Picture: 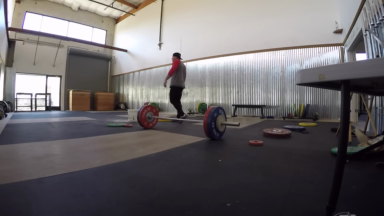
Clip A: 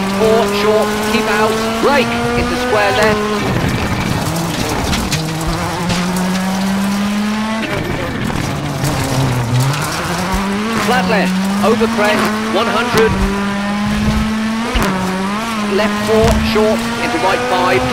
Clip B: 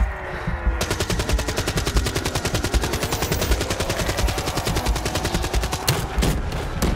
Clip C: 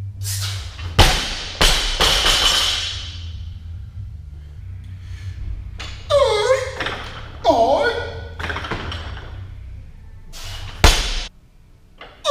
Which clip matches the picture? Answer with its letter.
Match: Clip C